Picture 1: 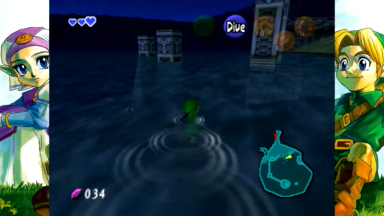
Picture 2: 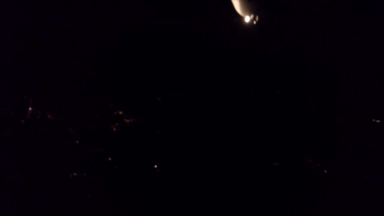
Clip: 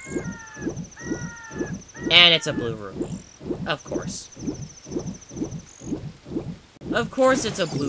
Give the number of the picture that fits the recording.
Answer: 1